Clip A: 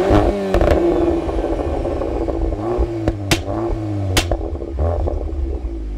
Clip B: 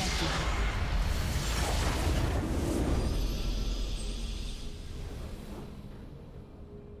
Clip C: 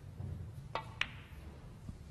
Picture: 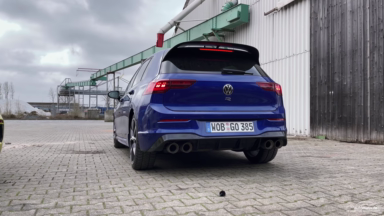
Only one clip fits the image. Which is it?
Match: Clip A